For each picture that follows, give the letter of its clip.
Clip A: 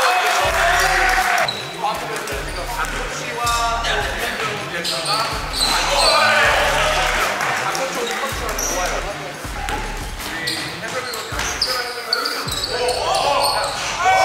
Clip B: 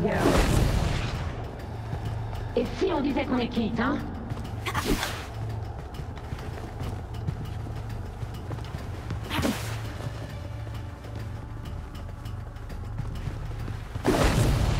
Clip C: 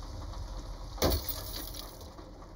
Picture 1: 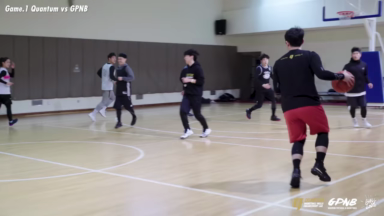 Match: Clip A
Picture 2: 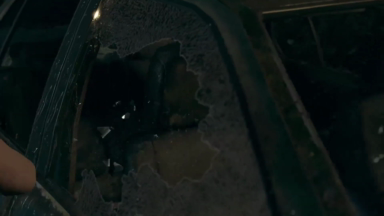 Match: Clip C